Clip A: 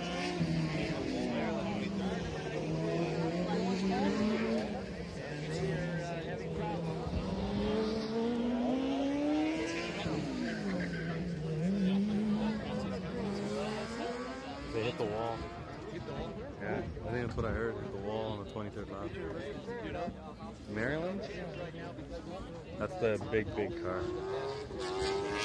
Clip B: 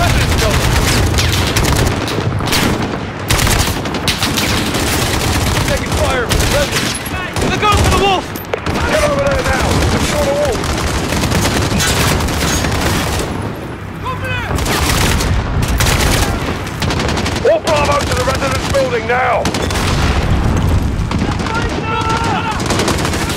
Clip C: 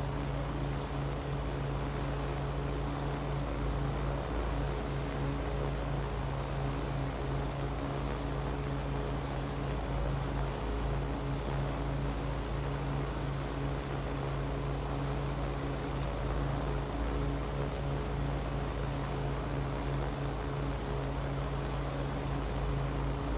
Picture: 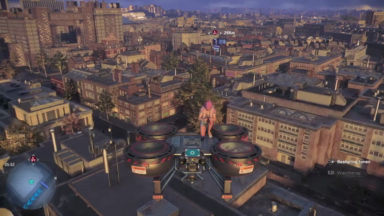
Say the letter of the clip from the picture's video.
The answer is C